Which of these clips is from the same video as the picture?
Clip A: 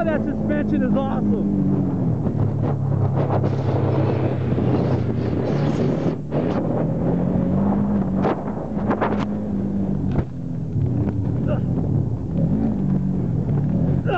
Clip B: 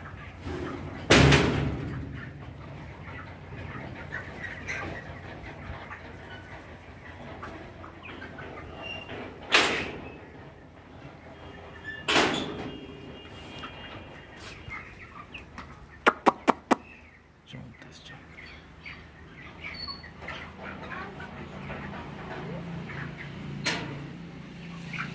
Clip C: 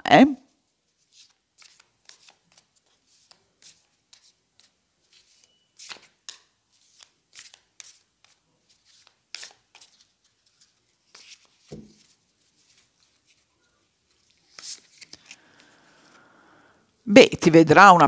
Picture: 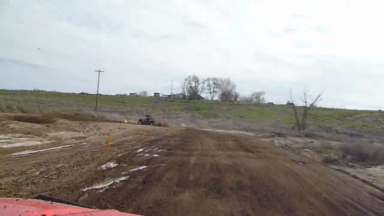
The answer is A